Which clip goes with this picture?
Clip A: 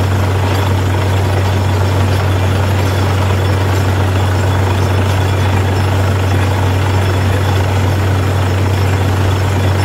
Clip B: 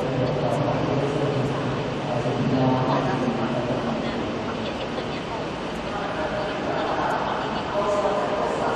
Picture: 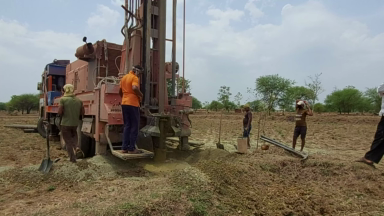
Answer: A